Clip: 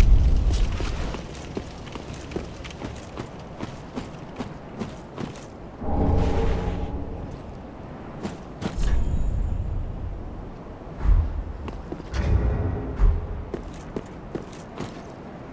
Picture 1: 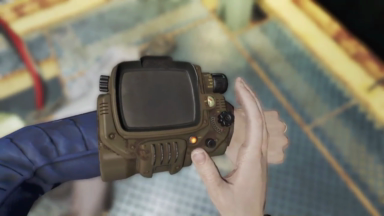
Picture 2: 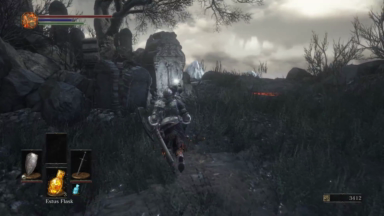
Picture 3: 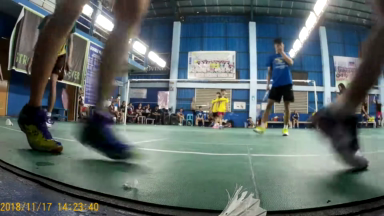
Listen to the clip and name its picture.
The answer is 2